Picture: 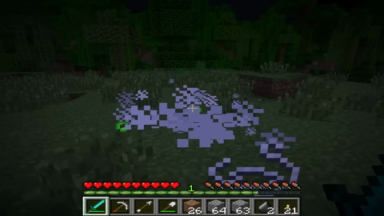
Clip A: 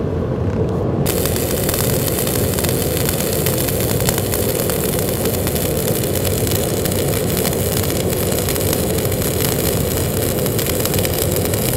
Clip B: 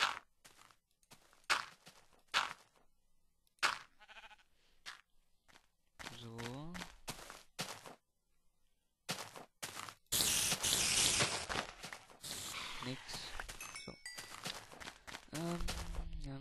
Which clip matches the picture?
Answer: B